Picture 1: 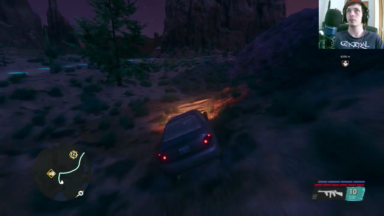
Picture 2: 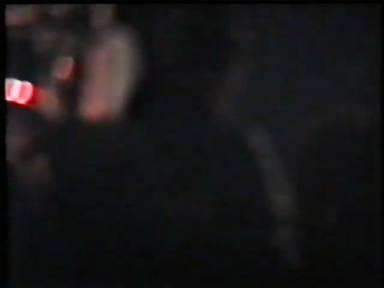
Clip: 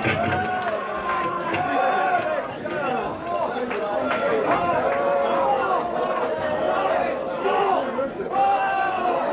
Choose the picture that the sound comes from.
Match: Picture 2